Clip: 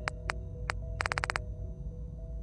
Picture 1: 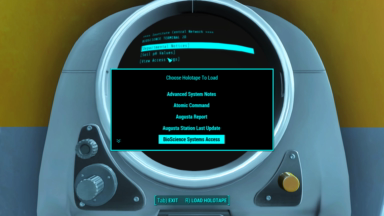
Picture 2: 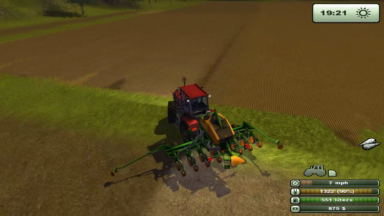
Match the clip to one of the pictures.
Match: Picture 1